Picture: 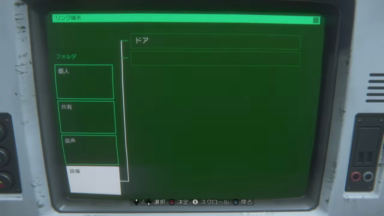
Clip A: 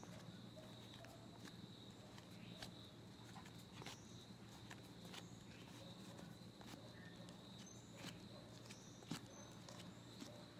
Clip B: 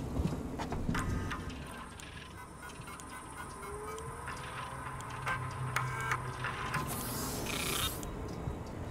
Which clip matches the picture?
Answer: B